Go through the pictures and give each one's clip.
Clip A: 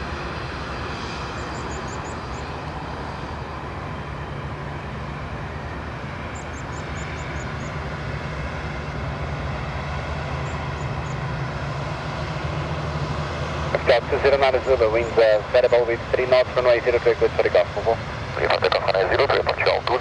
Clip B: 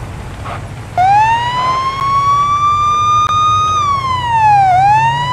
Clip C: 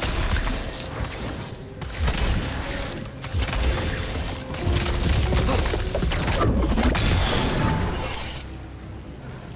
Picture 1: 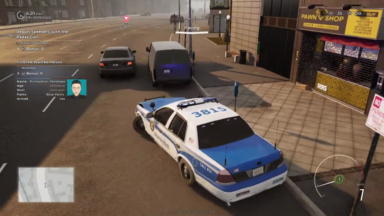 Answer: B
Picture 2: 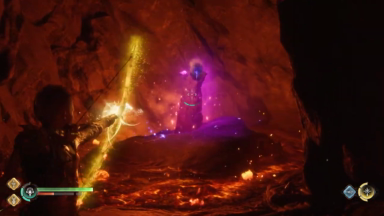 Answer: C